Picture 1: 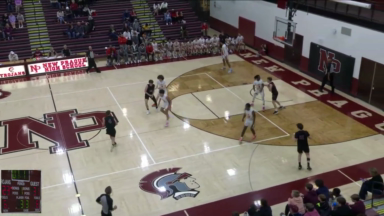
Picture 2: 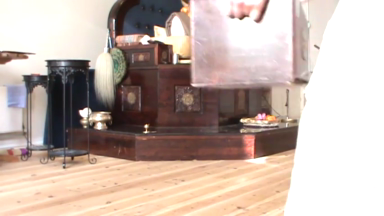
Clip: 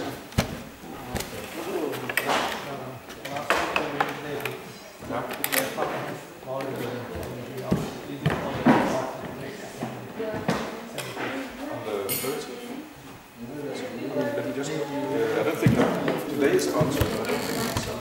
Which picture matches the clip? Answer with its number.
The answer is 2